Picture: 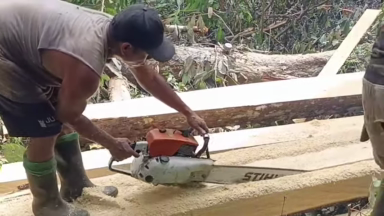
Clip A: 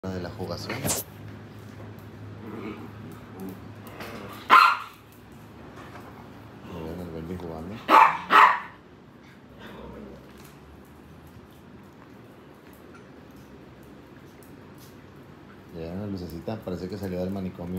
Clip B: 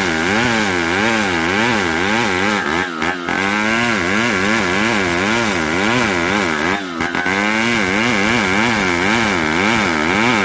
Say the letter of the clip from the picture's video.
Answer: B